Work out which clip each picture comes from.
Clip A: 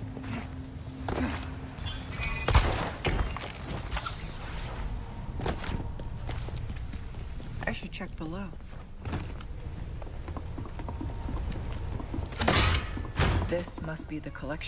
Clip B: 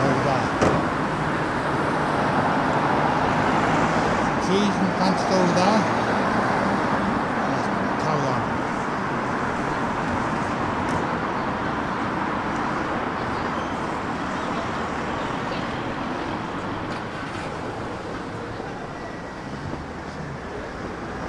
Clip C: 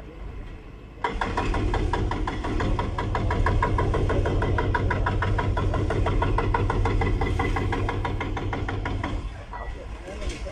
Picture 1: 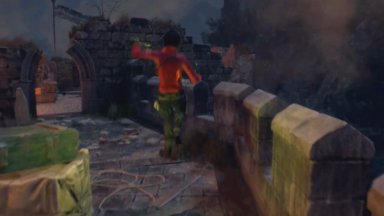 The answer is A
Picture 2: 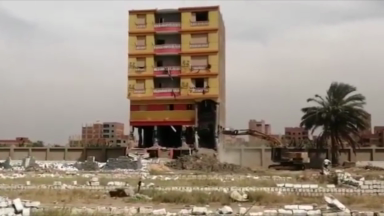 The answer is C